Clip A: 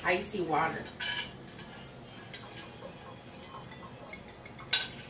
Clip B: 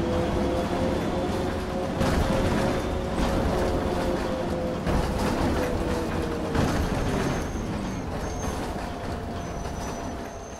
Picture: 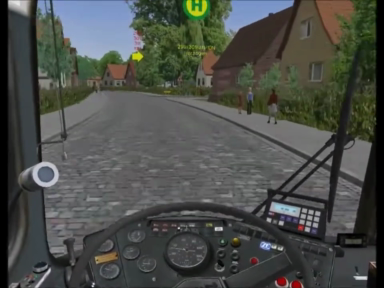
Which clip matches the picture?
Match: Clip B